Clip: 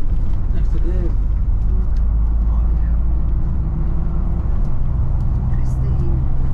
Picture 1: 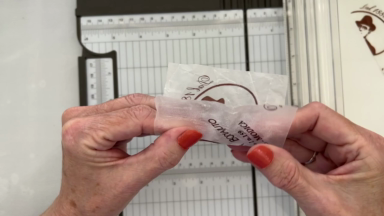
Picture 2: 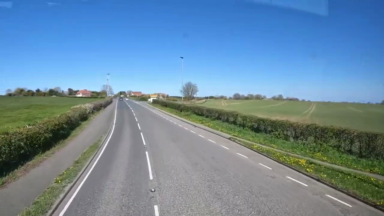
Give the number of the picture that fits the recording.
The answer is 2